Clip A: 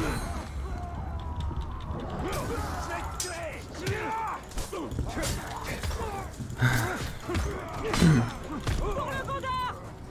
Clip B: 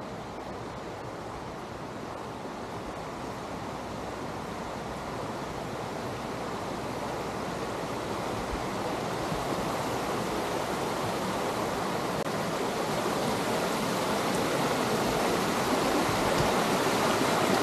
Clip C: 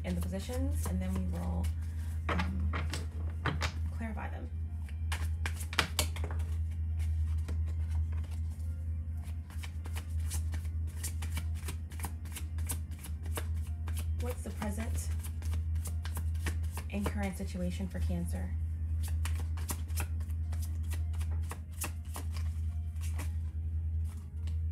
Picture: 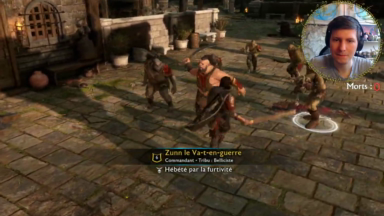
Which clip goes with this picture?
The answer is A